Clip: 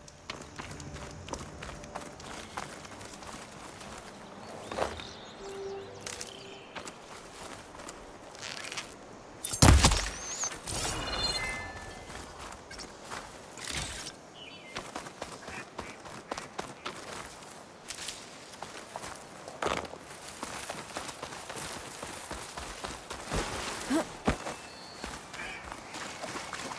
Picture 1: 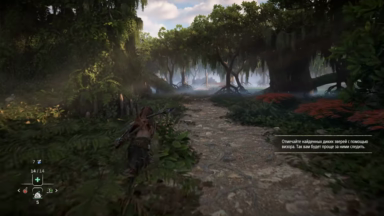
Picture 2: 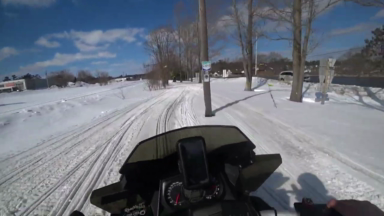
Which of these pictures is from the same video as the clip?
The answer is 1